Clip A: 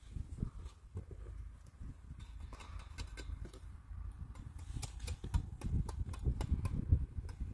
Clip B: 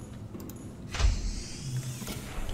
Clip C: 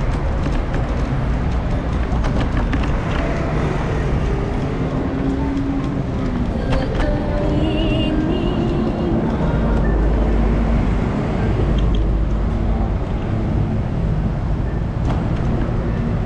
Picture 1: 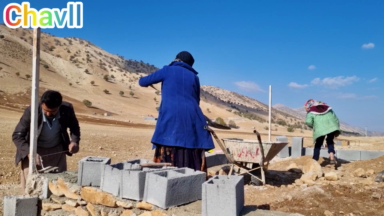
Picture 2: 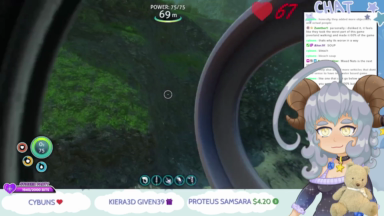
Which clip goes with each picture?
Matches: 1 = A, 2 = B